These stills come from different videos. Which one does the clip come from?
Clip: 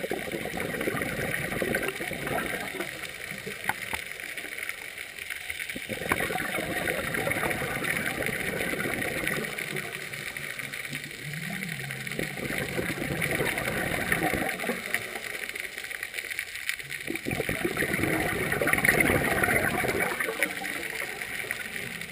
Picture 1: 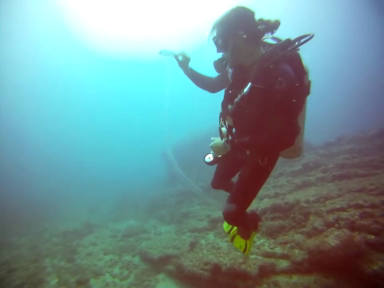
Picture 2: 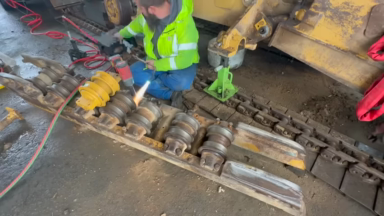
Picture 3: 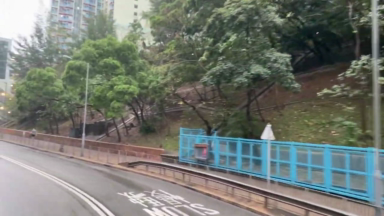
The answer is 1